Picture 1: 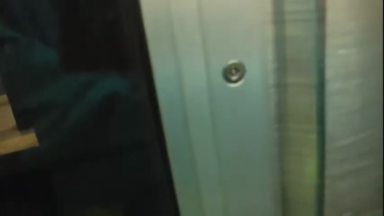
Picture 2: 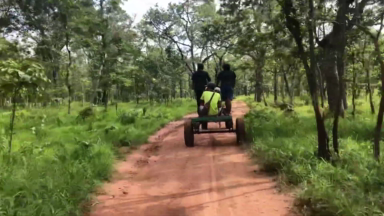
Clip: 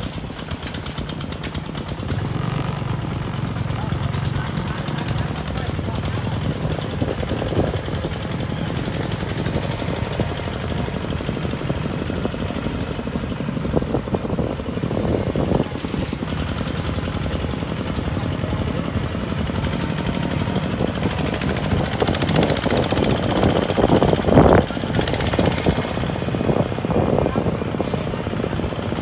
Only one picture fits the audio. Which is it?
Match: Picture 2